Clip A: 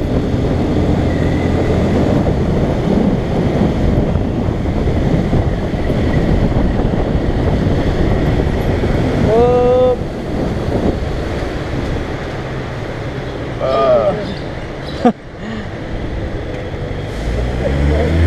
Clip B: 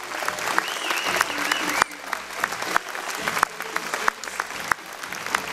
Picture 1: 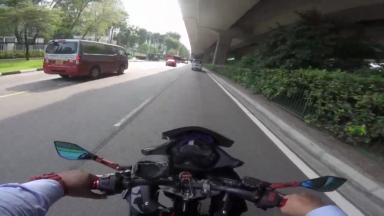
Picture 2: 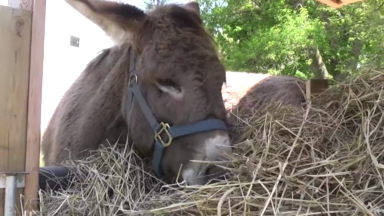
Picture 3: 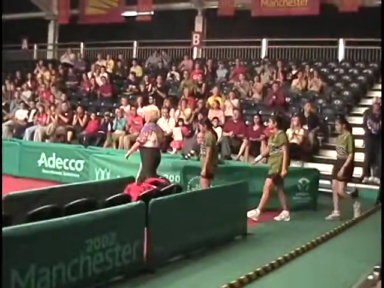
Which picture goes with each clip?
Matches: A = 1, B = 3